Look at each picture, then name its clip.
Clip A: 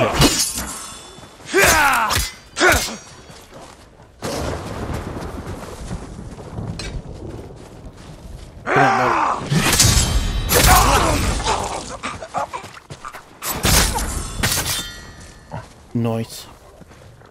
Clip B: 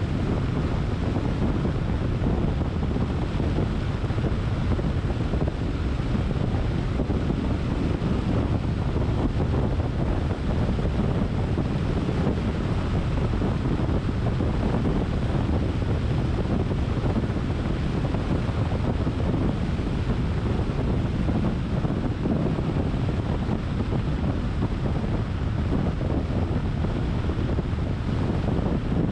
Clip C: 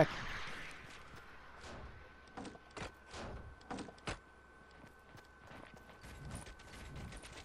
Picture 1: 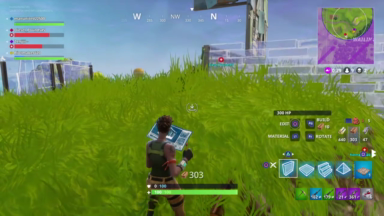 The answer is C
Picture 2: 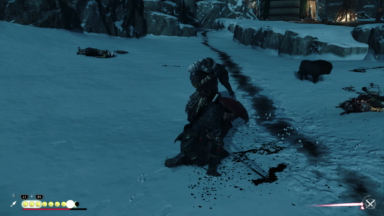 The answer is A